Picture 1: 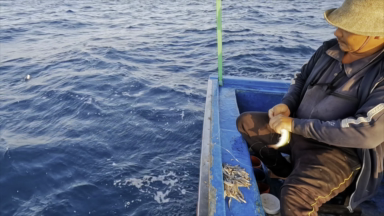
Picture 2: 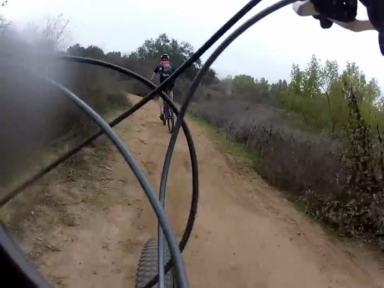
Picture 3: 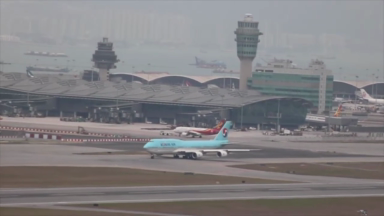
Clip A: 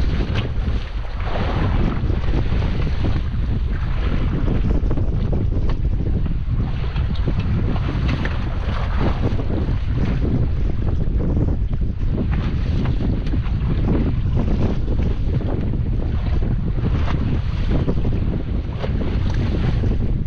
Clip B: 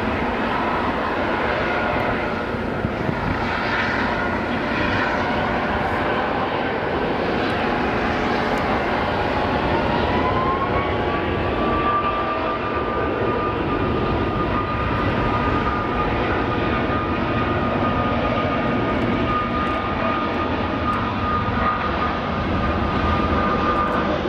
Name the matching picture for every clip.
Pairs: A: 1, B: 3